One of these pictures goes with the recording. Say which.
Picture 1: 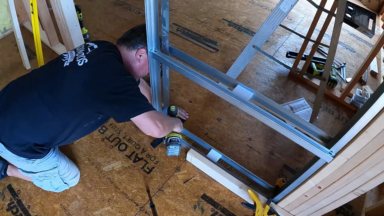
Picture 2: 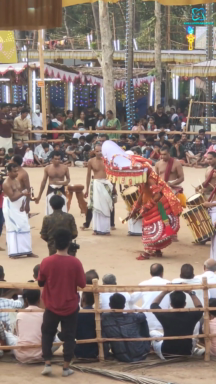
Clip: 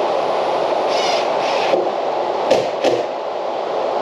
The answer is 1